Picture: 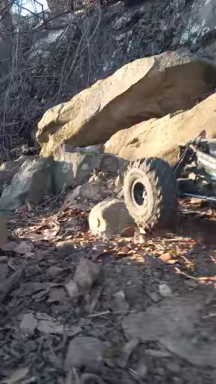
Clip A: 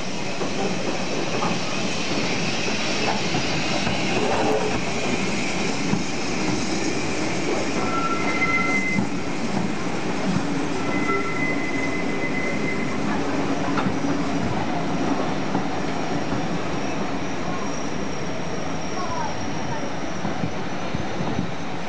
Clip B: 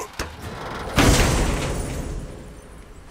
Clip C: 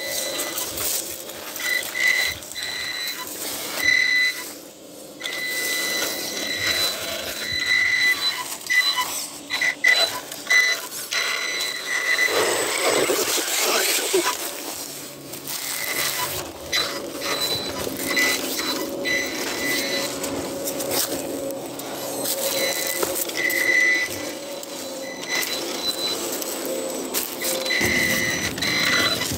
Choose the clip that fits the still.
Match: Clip C